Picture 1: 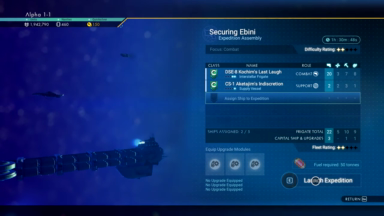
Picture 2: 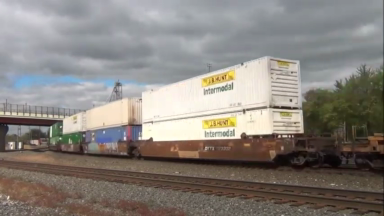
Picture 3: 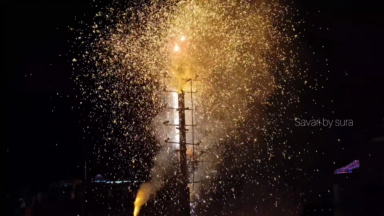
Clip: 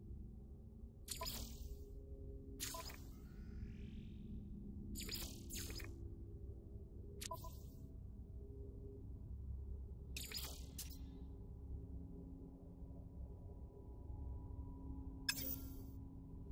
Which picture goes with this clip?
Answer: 1